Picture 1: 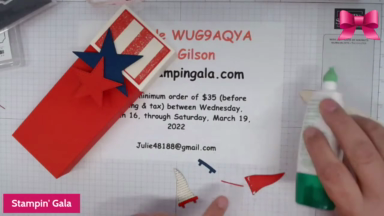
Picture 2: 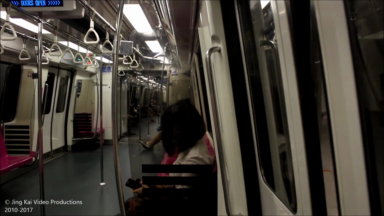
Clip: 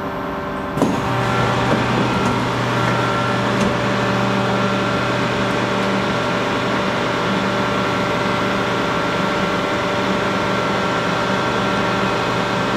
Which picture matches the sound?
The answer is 2